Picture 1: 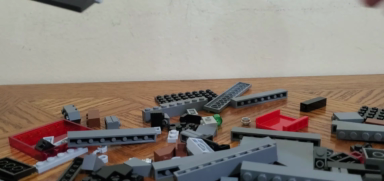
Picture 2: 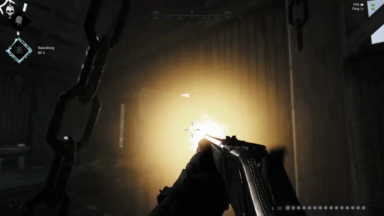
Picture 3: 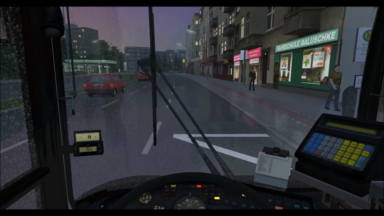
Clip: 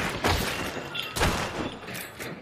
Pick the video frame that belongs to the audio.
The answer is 2